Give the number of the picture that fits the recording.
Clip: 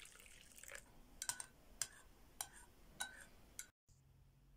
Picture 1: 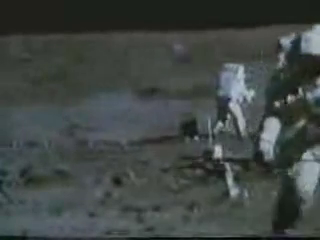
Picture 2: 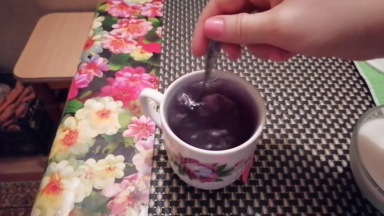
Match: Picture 2